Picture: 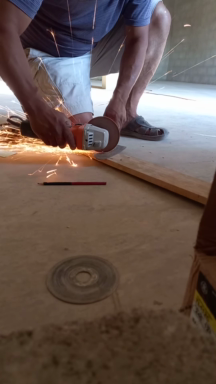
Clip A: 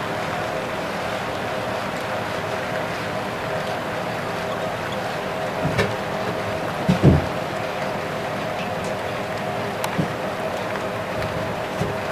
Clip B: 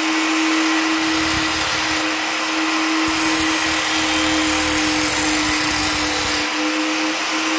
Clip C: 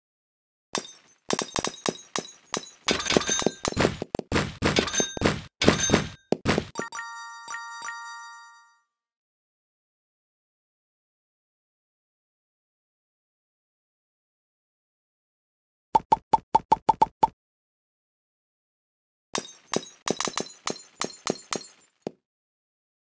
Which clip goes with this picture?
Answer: B